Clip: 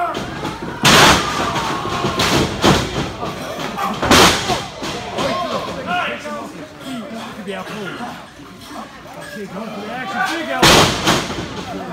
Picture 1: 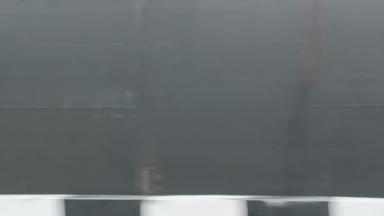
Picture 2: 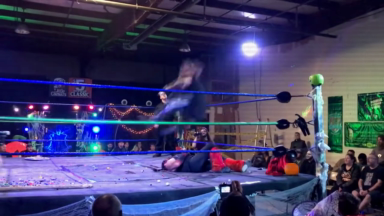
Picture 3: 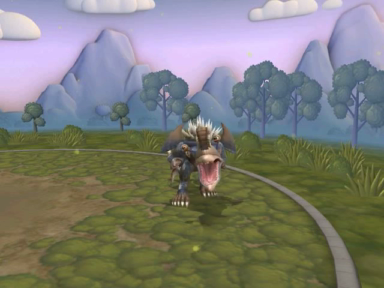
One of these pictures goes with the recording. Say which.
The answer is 2